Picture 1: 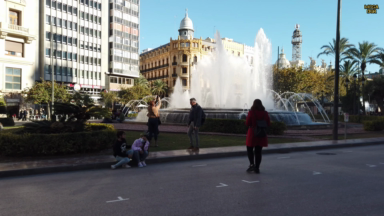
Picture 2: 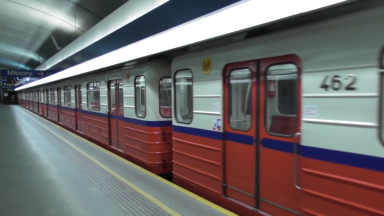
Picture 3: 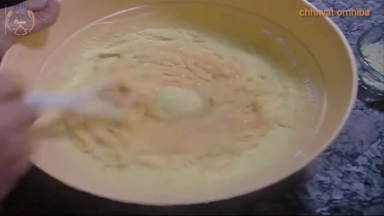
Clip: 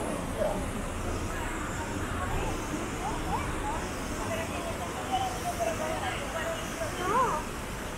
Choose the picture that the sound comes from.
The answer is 1